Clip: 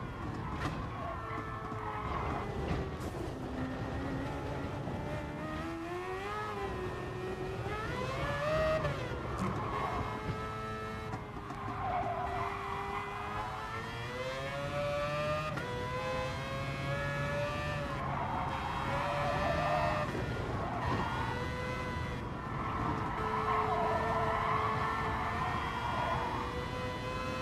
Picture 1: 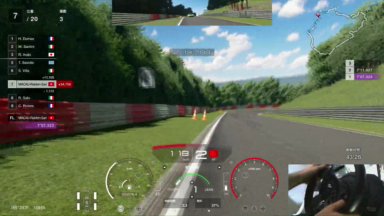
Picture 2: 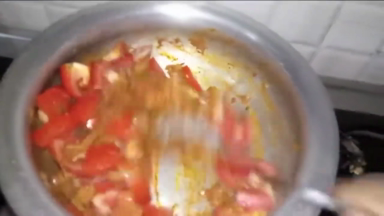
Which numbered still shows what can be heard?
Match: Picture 1